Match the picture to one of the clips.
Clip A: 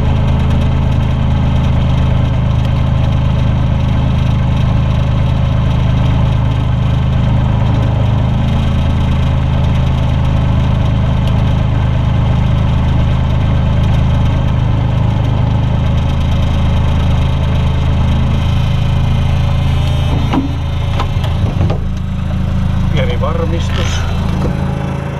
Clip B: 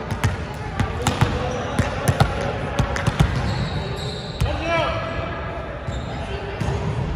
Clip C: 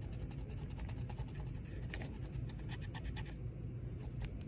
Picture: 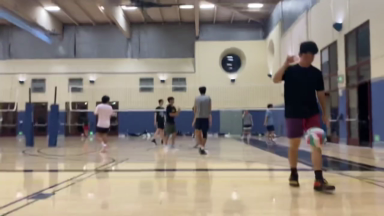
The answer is B